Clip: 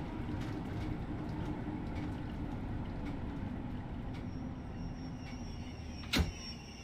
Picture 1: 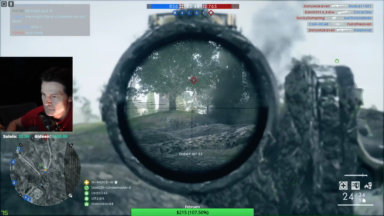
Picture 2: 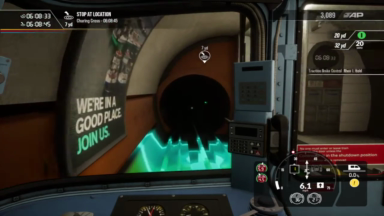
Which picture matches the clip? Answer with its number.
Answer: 2